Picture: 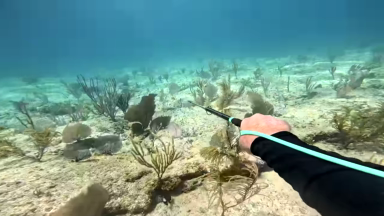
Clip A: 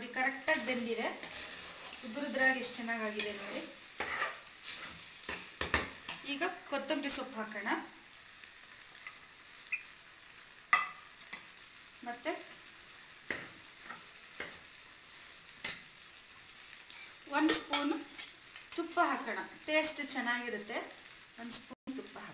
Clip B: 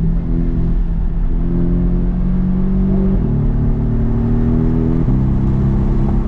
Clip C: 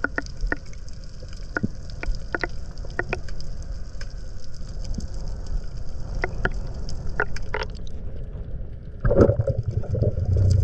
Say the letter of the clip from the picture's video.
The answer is C